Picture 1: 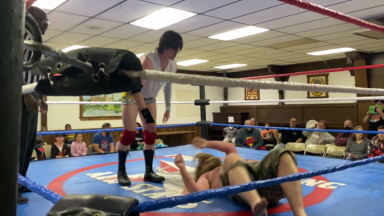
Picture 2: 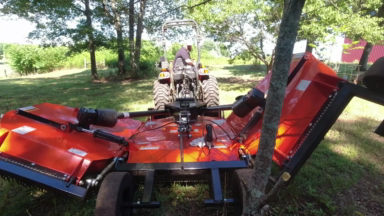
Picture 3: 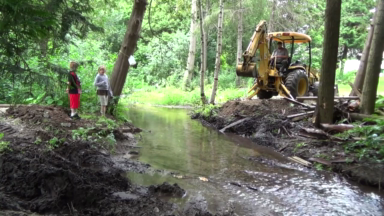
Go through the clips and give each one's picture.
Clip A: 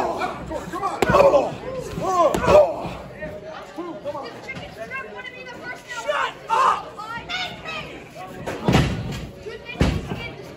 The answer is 1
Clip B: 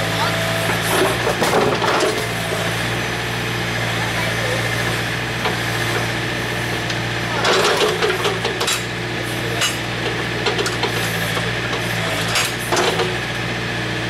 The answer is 3